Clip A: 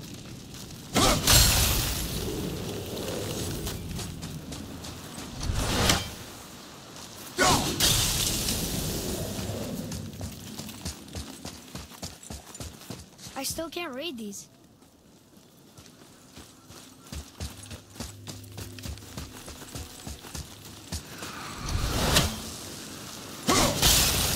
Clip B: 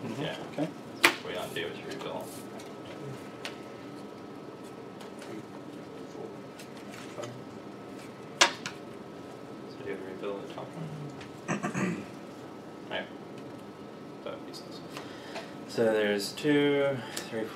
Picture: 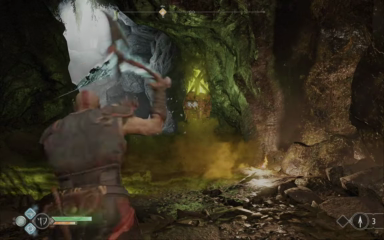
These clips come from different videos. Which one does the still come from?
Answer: A